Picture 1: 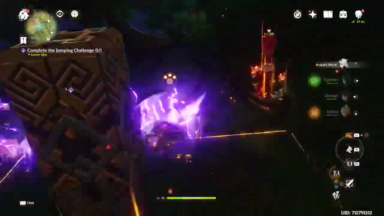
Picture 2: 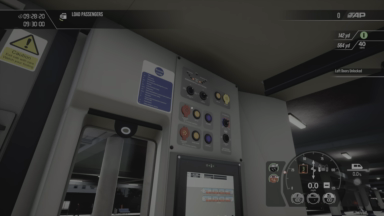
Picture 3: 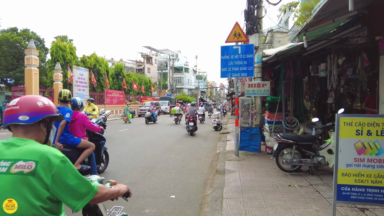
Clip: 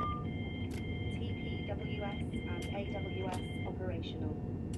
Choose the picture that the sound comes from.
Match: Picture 2